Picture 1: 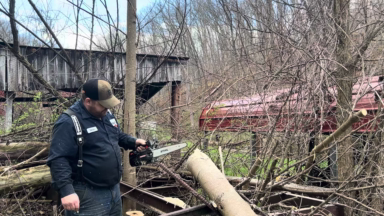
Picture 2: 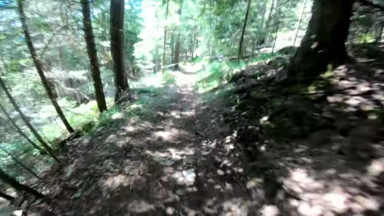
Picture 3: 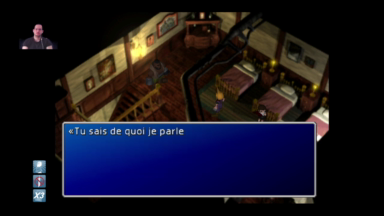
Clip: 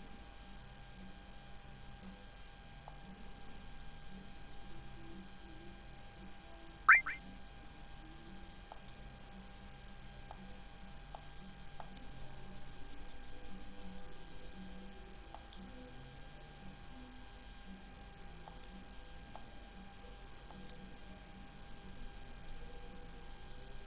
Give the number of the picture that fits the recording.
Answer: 3